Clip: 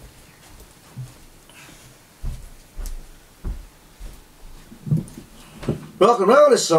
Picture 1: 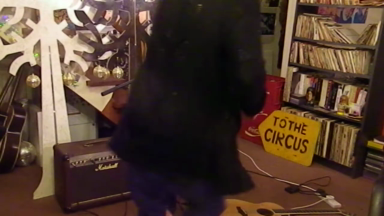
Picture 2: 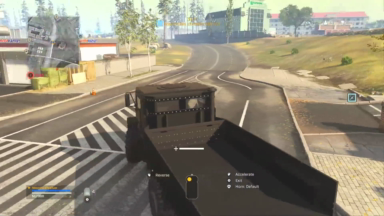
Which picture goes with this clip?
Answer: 1